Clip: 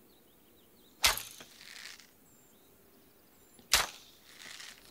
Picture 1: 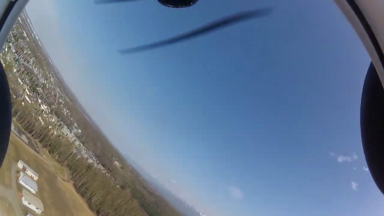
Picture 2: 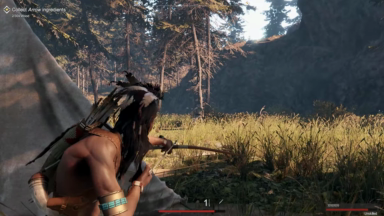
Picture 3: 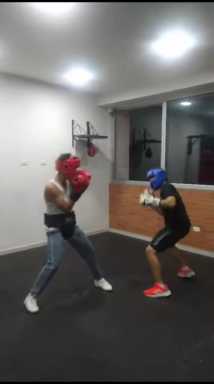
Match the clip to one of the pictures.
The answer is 2